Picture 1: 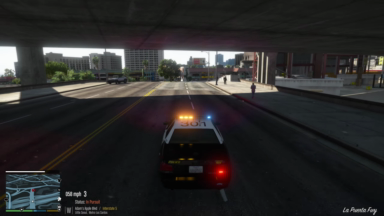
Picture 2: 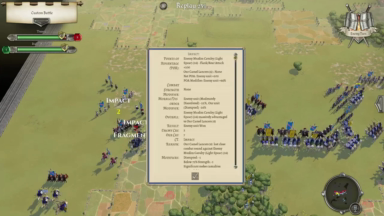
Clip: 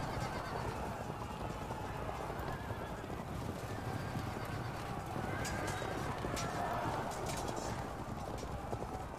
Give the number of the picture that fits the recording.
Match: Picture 2